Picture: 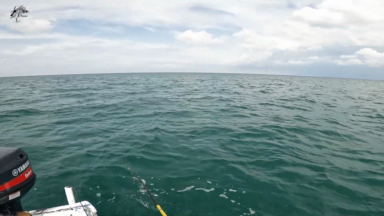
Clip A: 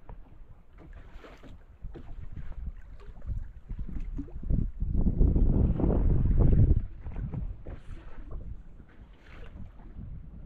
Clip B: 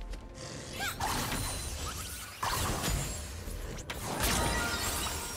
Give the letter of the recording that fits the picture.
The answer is A